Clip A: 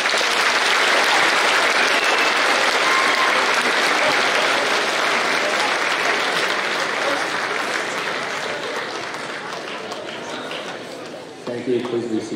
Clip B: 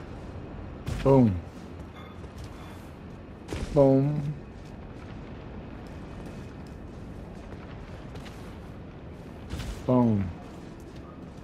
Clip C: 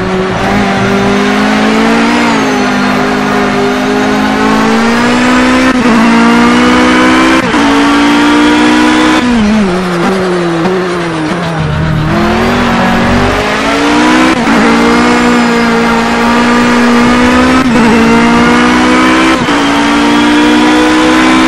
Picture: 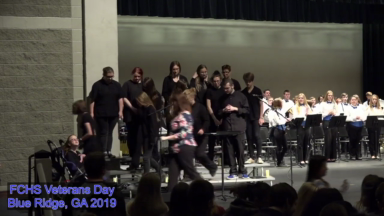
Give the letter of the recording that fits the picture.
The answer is A